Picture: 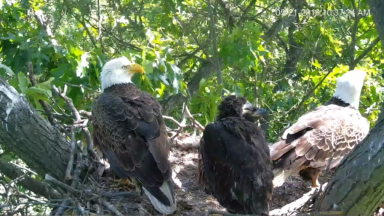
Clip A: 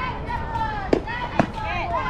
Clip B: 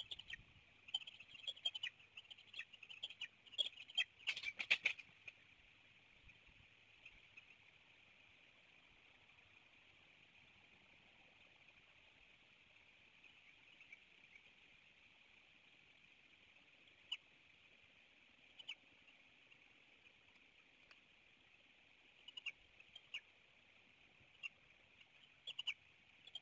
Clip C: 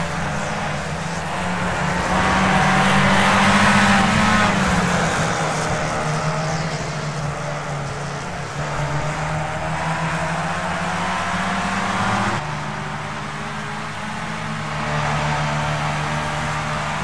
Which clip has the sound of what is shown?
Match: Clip B